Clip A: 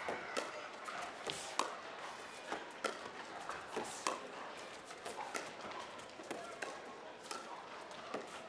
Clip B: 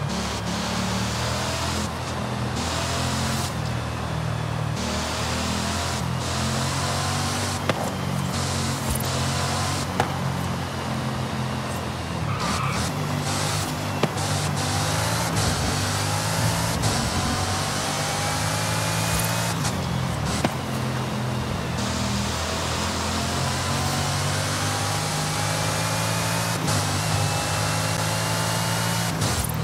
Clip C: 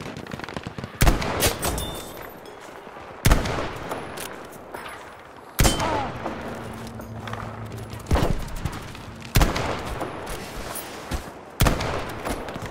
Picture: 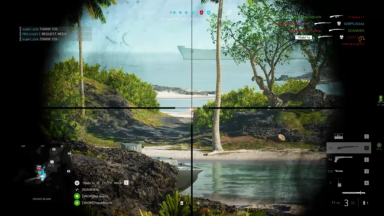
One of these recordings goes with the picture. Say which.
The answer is C